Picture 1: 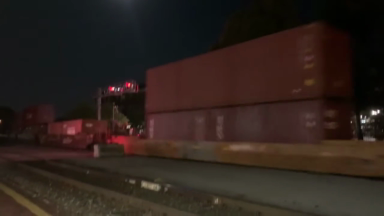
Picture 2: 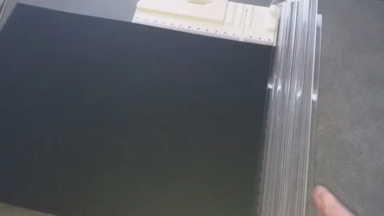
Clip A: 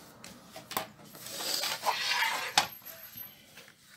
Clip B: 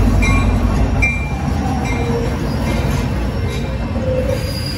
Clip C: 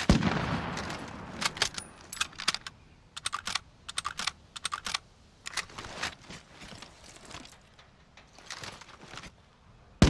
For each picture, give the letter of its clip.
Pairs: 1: B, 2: A